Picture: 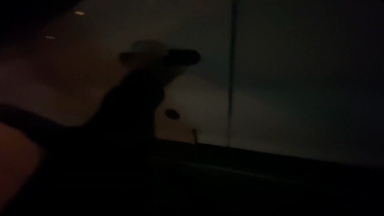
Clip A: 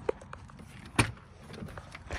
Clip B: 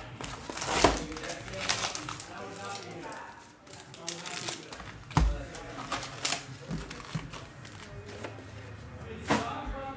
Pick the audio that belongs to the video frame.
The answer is A